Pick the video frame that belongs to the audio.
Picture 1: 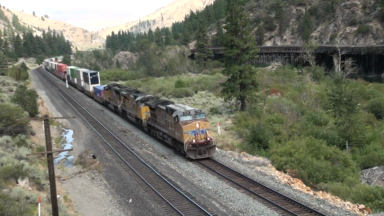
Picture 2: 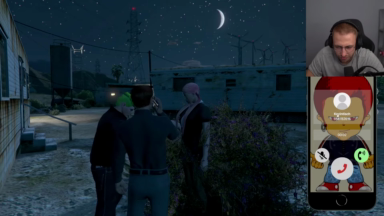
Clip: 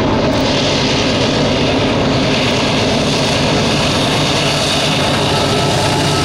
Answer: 1